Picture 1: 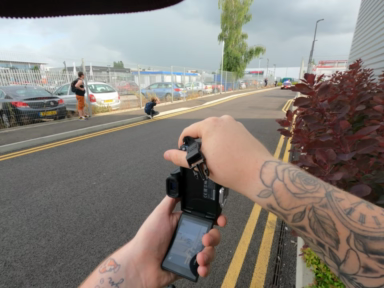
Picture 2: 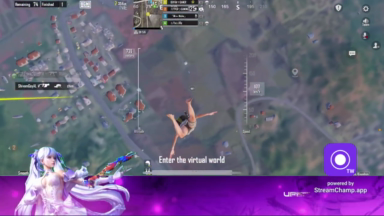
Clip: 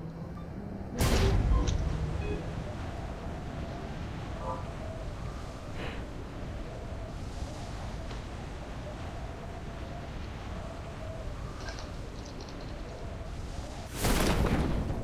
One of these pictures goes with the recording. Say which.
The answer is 2